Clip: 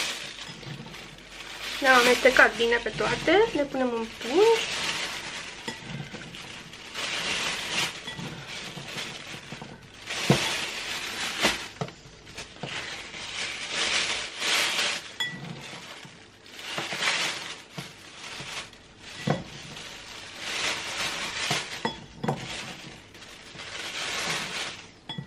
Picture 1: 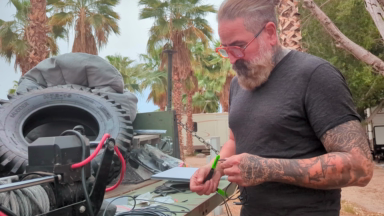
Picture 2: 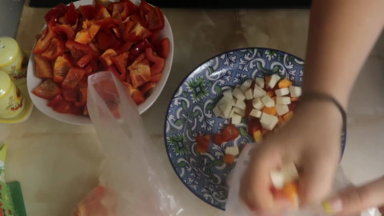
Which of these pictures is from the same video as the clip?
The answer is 2